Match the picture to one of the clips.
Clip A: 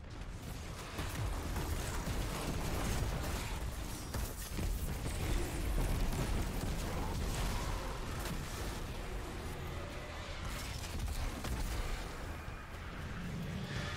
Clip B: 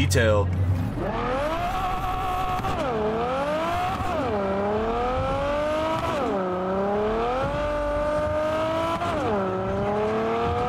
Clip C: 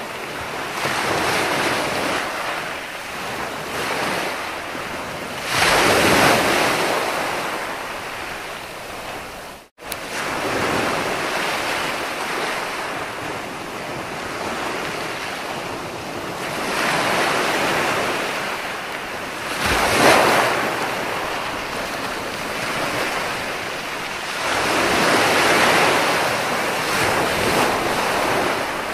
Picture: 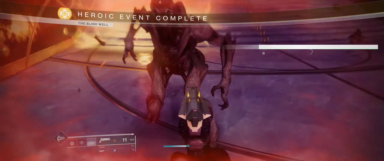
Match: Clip A